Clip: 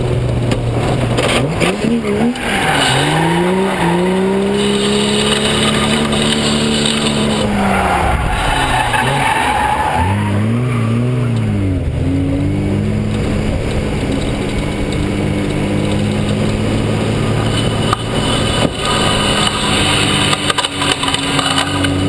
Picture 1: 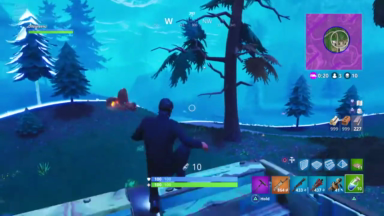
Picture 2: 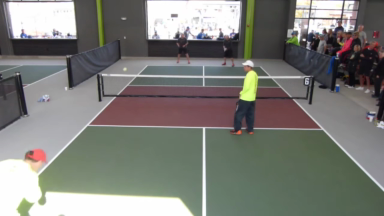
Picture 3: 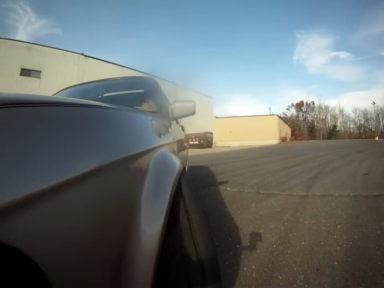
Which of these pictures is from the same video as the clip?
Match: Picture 3